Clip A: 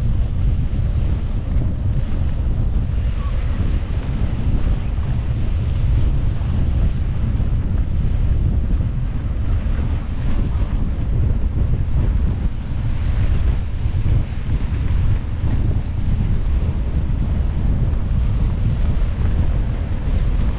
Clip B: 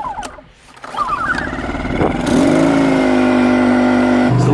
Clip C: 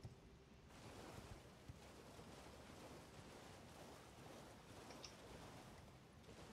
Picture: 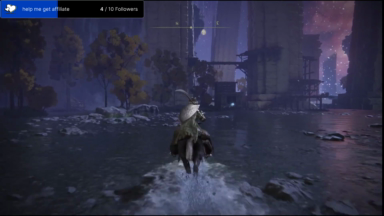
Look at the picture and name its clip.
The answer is C